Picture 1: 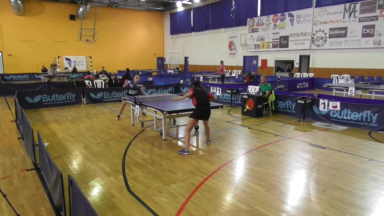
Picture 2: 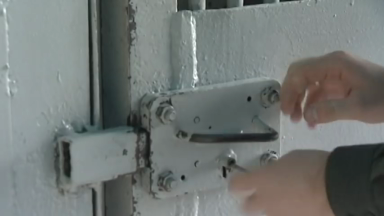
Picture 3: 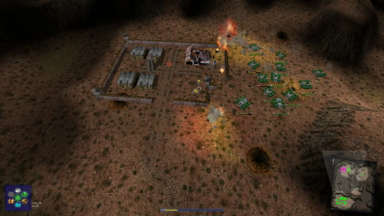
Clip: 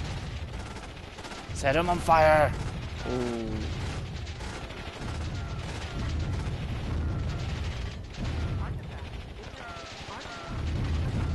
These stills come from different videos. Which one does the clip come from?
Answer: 3